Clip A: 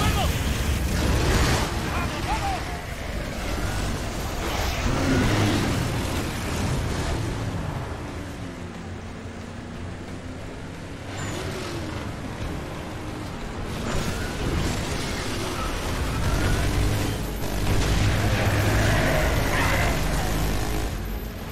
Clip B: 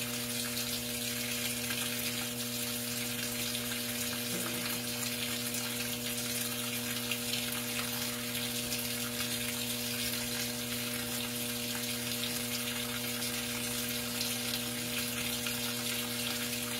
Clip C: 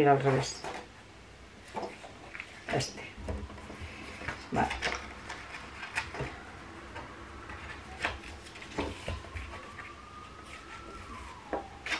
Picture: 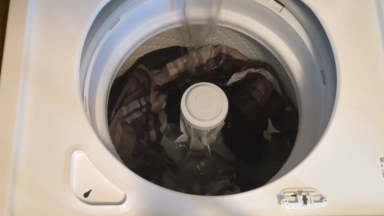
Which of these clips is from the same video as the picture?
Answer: B